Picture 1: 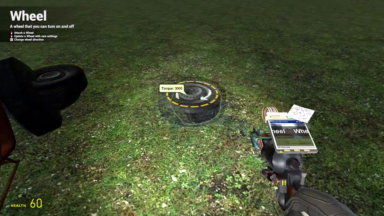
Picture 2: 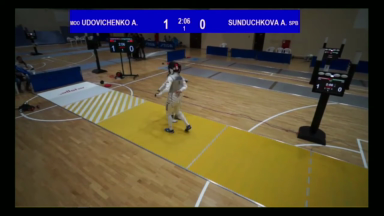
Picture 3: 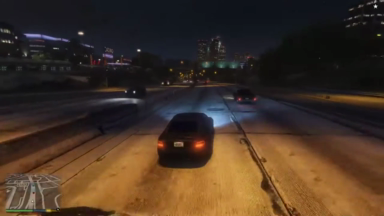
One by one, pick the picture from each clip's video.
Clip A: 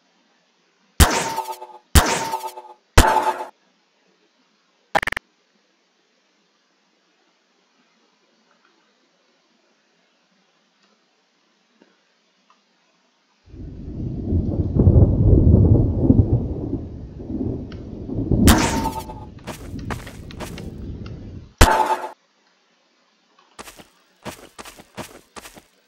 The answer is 1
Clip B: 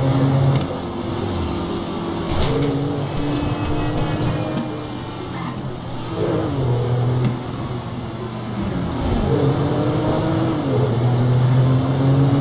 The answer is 3